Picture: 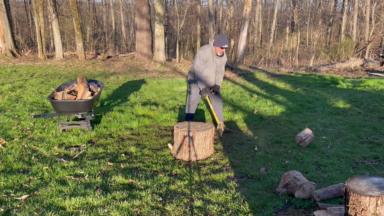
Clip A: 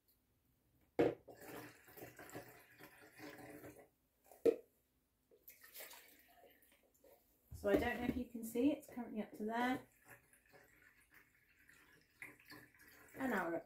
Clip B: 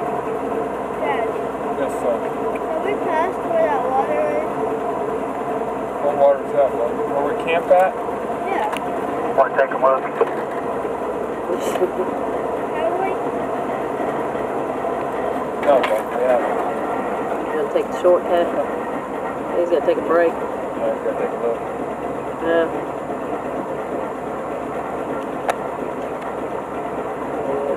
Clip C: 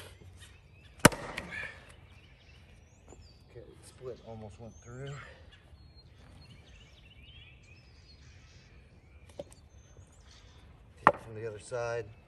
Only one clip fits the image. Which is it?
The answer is C